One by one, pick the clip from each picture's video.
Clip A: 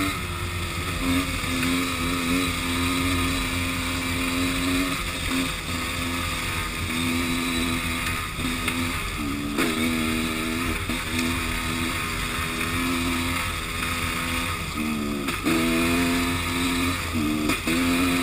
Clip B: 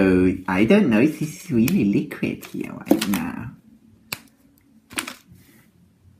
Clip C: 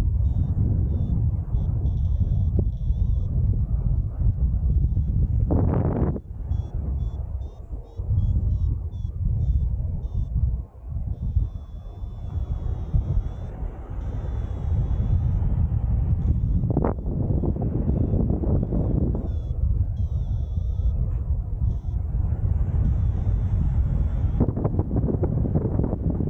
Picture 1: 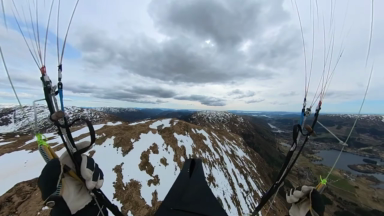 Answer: C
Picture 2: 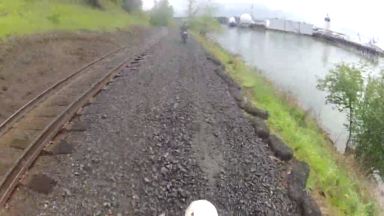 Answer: A